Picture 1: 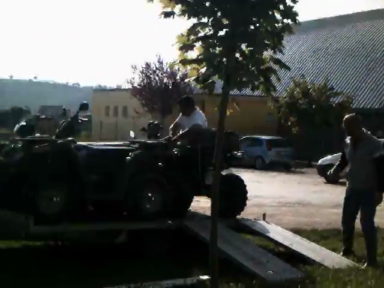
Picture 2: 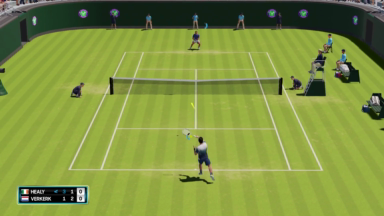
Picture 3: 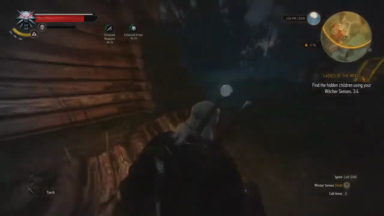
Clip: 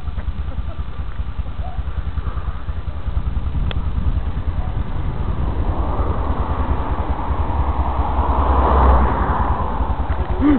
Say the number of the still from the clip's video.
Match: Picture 1